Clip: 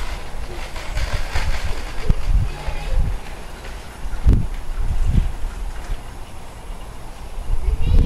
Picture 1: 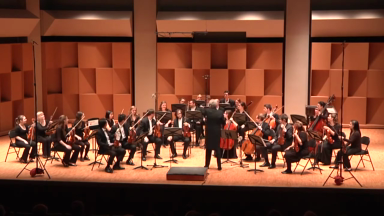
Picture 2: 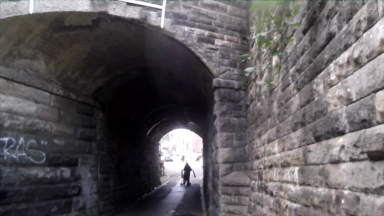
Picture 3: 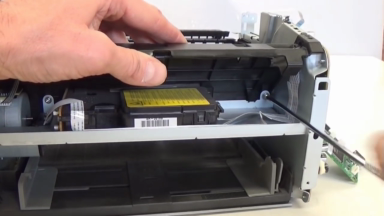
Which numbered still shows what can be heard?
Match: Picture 2